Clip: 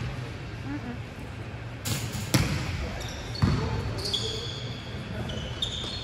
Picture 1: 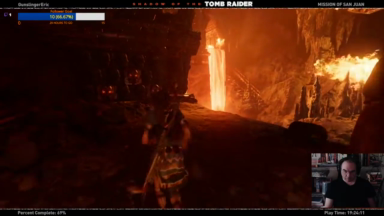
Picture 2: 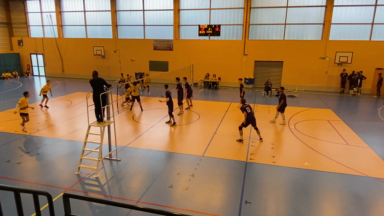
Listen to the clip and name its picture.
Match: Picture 2